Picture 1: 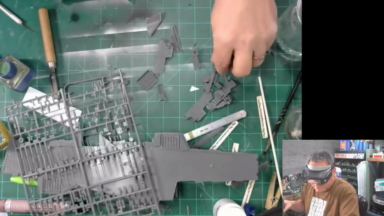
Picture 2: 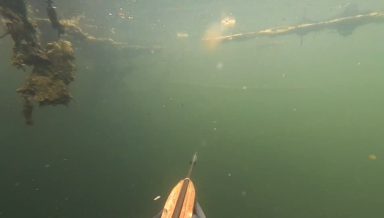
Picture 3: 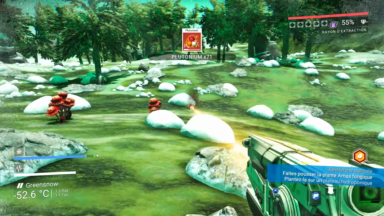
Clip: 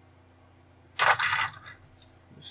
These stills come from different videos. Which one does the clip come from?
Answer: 1